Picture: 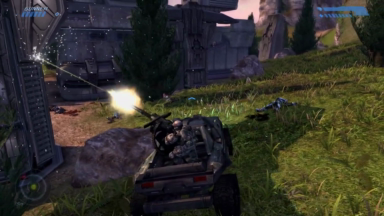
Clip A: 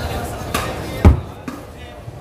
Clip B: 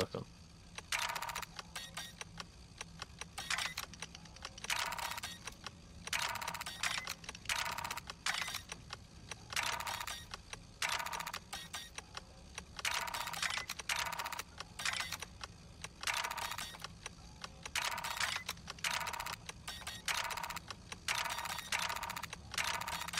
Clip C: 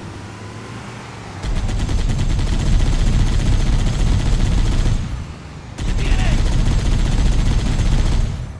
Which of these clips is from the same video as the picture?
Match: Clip C